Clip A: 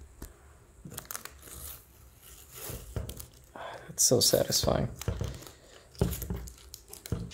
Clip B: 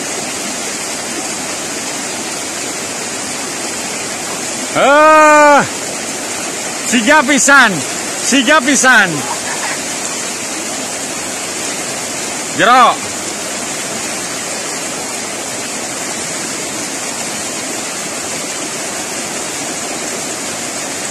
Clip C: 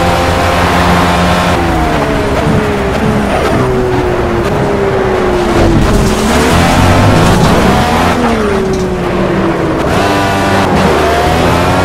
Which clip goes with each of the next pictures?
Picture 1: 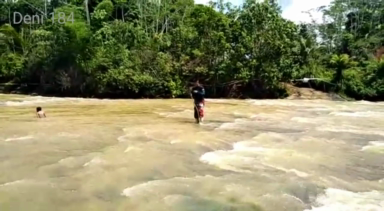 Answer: B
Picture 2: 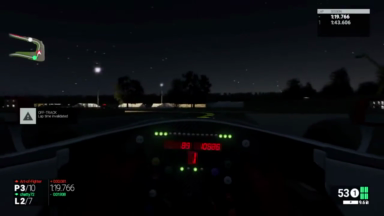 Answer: C